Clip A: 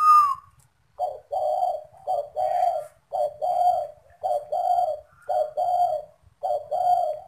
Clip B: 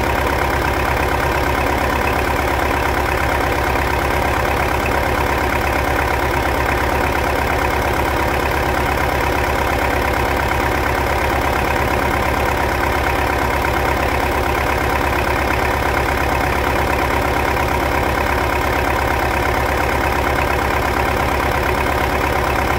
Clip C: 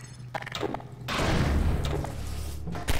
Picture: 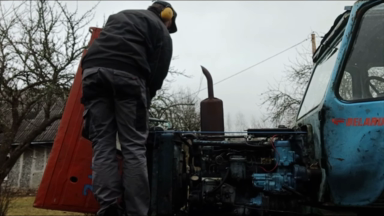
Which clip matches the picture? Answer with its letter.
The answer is B